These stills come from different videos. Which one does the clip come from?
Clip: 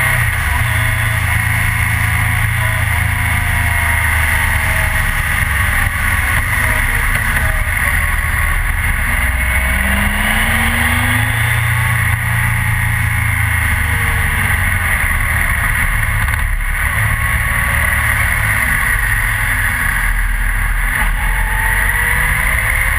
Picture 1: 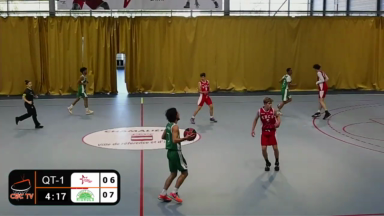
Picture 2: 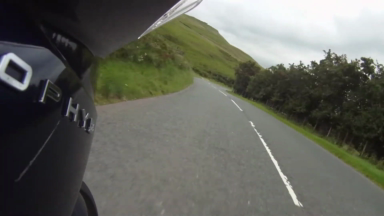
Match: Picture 2